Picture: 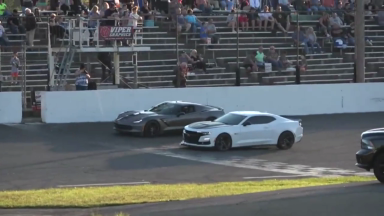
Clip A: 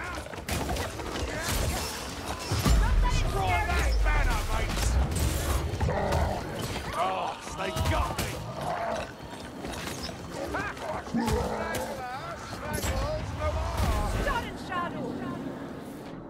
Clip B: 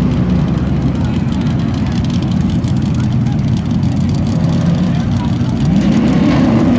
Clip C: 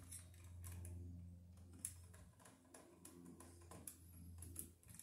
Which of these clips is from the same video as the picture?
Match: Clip B